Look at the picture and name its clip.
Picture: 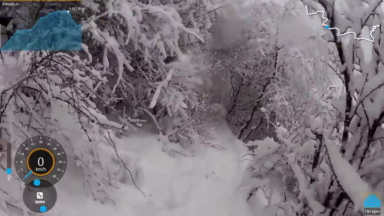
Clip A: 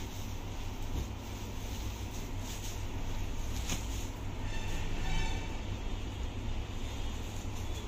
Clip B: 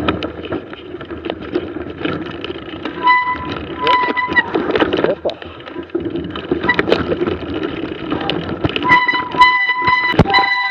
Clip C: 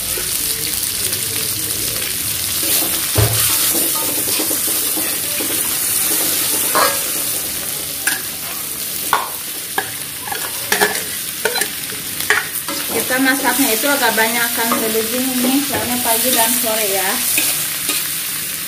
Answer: B